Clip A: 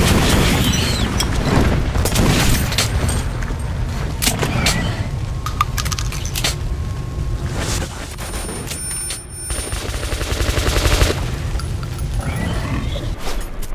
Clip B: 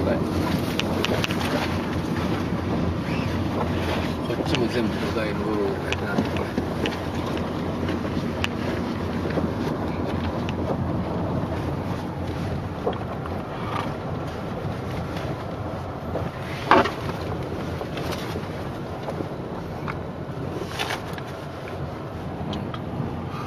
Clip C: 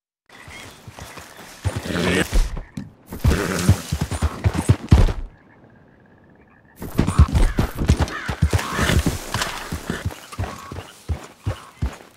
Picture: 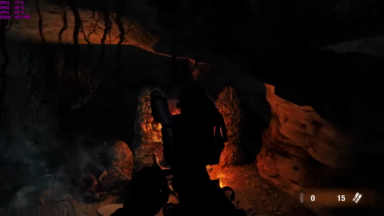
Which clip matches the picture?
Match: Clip A